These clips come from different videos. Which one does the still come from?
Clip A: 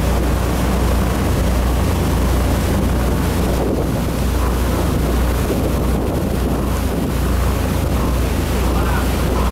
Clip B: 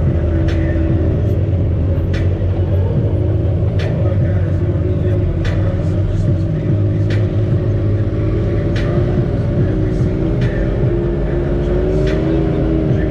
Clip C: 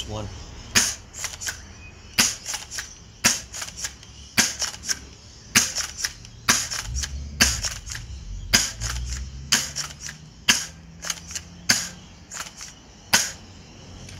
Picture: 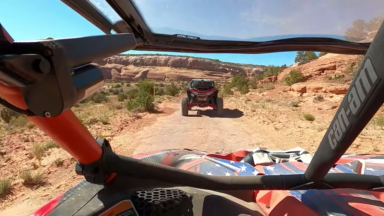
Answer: B